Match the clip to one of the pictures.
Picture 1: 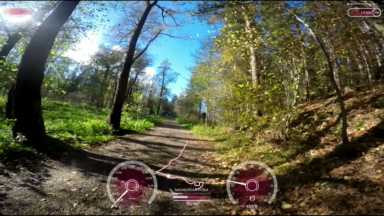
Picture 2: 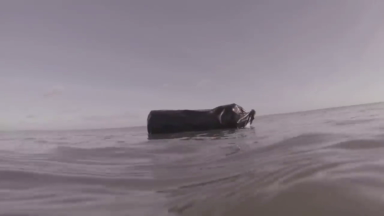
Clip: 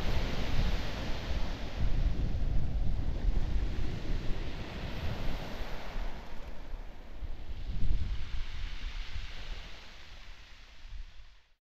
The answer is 2